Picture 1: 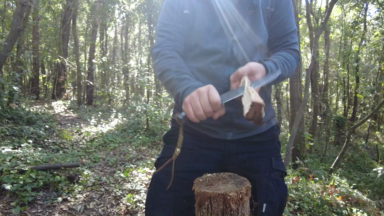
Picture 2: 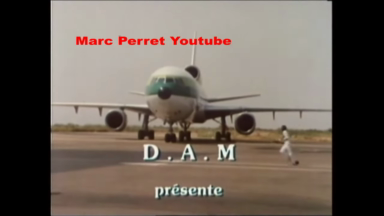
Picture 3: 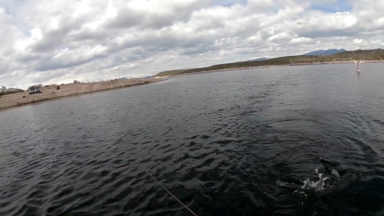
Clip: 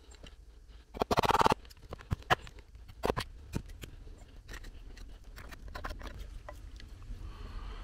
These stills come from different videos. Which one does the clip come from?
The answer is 1